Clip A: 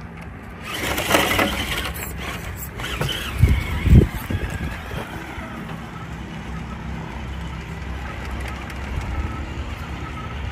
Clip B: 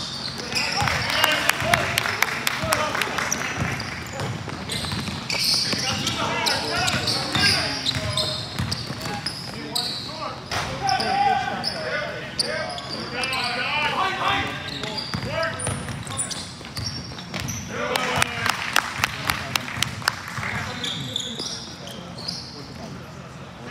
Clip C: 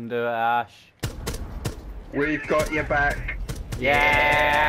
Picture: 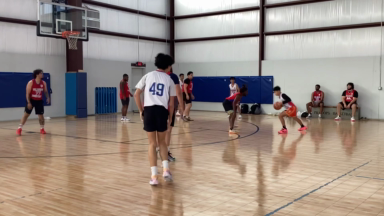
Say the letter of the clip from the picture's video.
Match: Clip B